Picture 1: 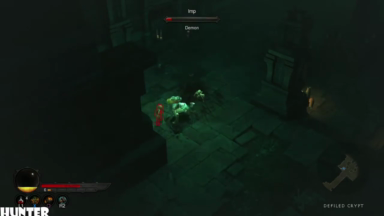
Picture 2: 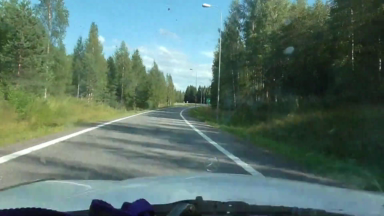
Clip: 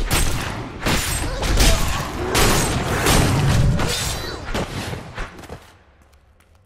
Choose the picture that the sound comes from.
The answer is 1